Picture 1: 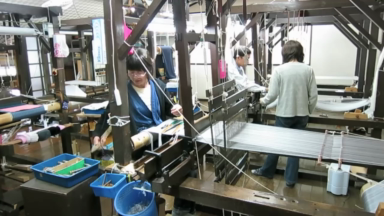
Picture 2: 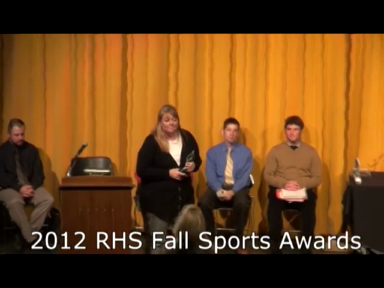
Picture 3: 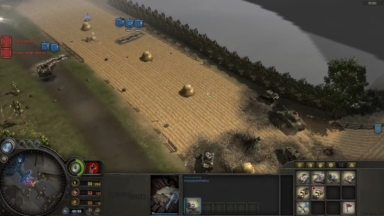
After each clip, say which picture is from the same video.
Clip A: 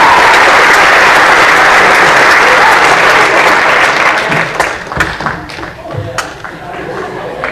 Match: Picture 2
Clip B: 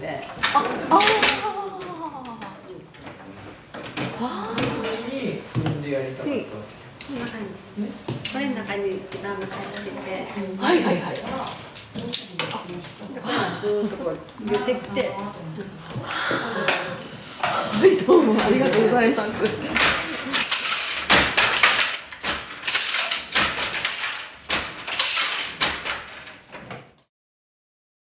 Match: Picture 1